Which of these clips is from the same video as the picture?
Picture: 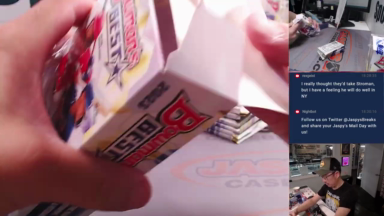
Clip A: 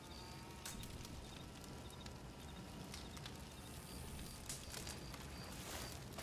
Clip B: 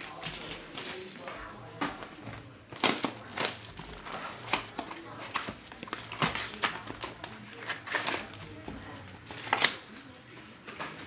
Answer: B